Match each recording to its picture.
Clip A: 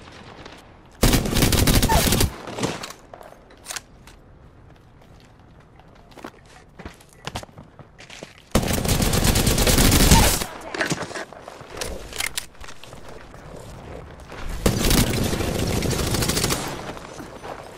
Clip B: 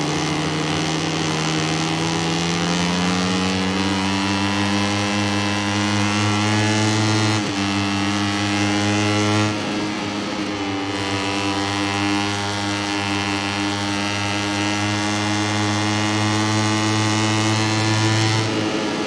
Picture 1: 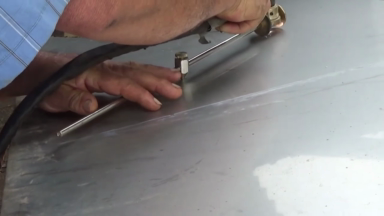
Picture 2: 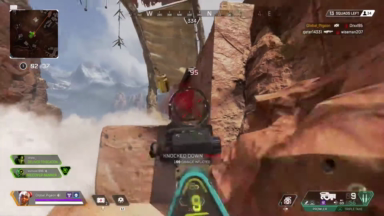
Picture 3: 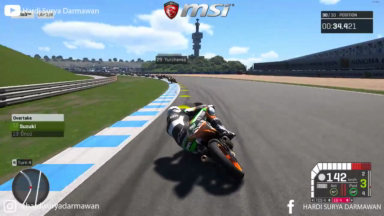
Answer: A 2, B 3